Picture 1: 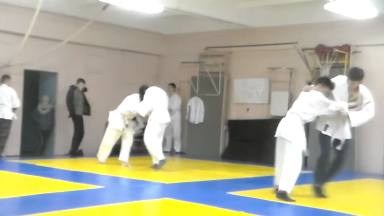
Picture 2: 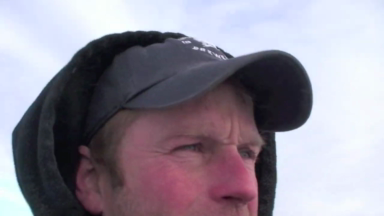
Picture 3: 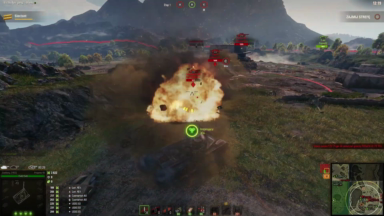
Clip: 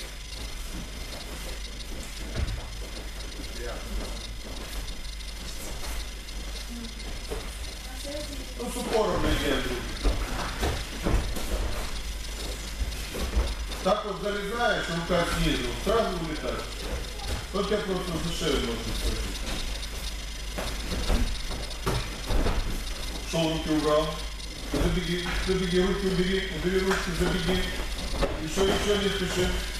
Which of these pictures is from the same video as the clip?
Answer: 1